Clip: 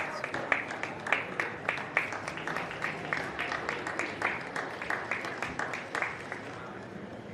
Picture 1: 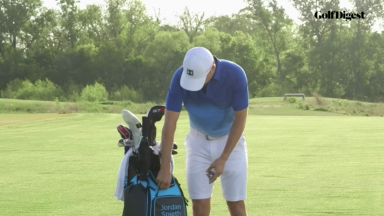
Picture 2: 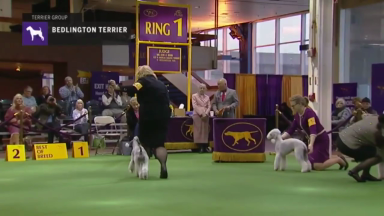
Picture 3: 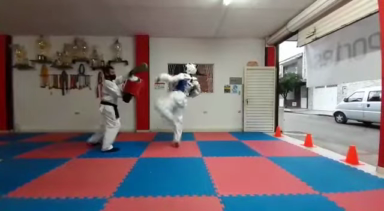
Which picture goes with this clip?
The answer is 2